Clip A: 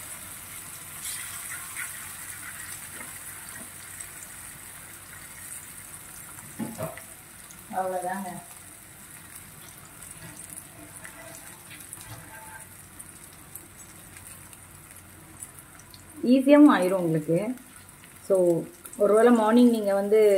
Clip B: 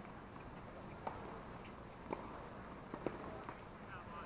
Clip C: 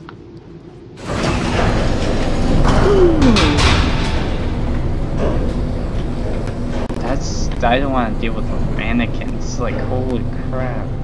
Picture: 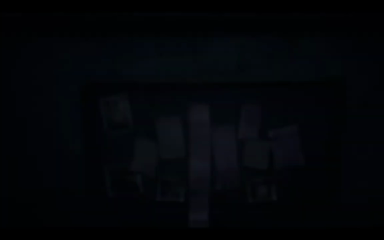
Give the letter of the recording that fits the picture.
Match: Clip C